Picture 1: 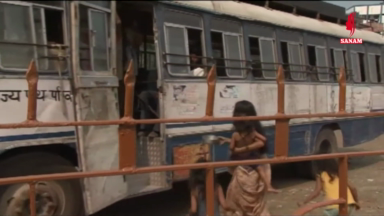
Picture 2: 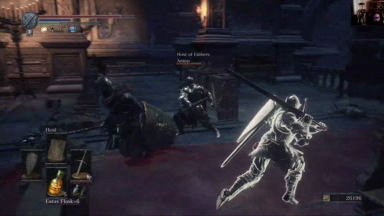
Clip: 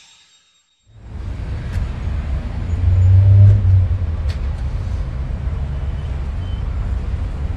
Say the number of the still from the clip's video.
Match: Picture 1